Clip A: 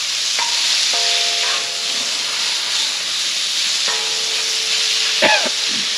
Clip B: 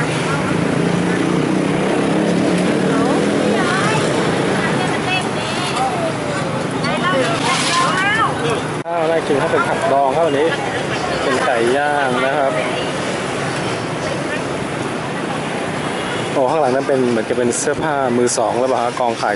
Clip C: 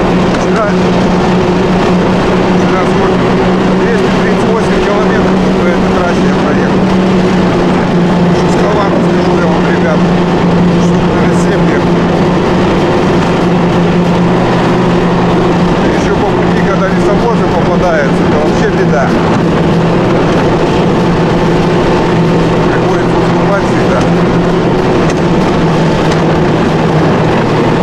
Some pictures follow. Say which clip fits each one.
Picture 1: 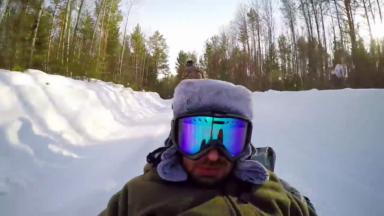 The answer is C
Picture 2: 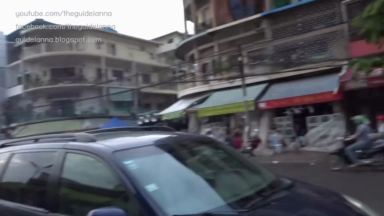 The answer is B